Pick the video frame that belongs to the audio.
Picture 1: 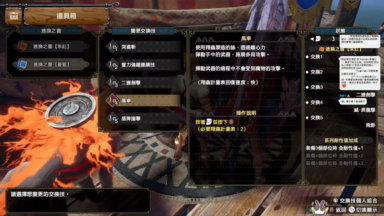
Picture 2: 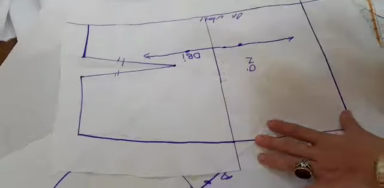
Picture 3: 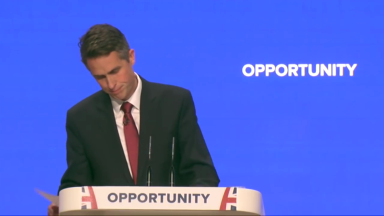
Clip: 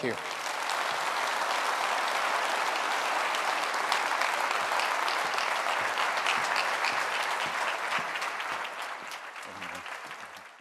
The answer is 3